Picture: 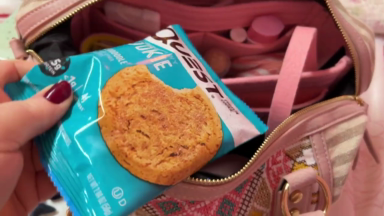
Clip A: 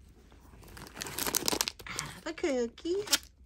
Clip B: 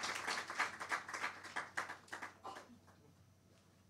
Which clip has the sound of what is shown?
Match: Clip A